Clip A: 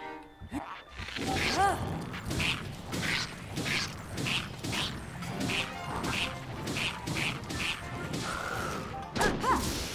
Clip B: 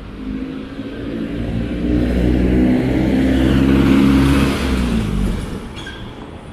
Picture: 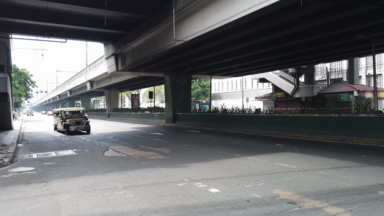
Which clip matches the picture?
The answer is B